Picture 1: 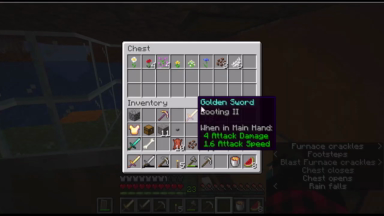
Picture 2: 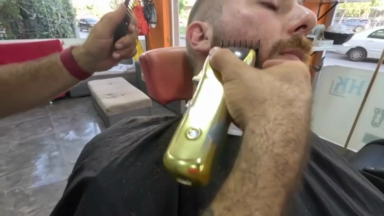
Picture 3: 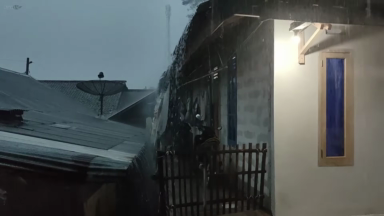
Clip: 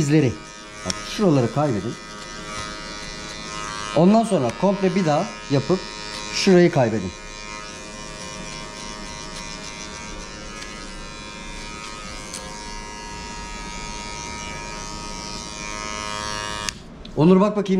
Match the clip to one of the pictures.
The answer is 2